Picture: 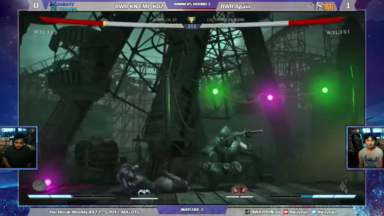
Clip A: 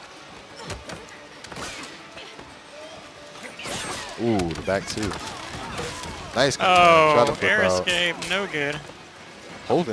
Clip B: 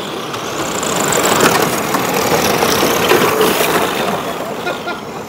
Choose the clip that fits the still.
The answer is A